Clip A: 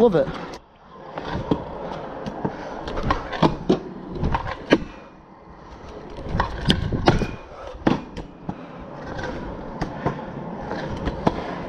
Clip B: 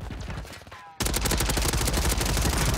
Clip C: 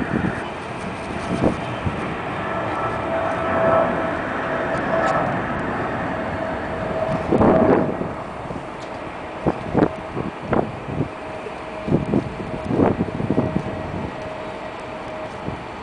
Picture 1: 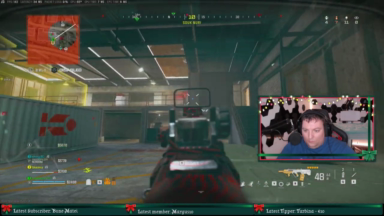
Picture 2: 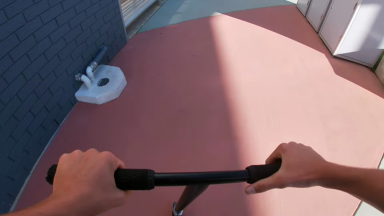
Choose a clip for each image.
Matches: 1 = B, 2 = A